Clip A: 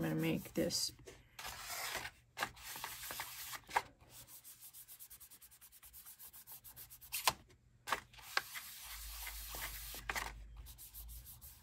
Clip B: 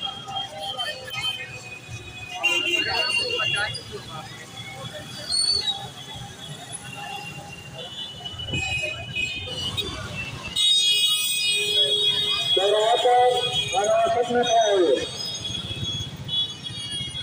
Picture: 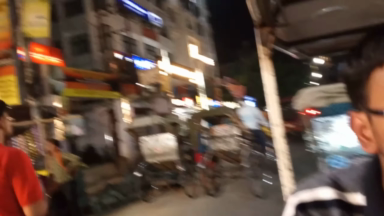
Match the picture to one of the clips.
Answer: B